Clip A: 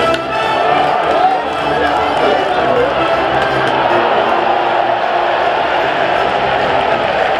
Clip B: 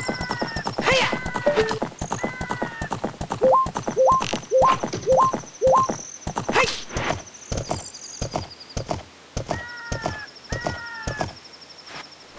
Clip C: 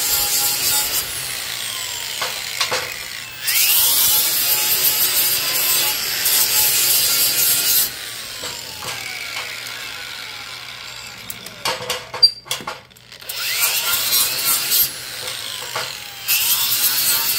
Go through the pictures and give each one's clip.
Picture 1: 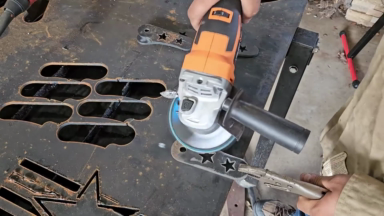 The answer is C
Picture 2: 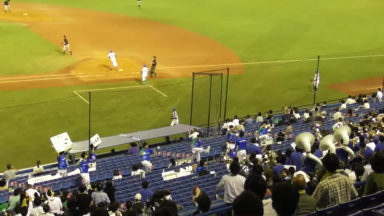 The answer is A